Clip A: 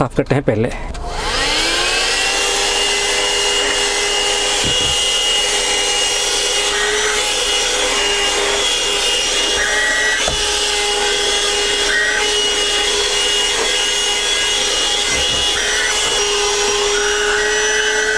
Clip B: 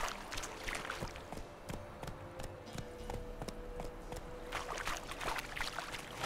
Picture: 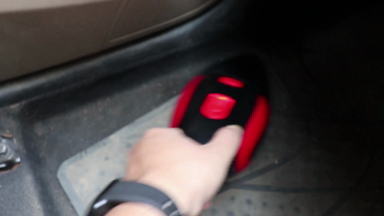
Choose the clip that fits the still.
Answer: A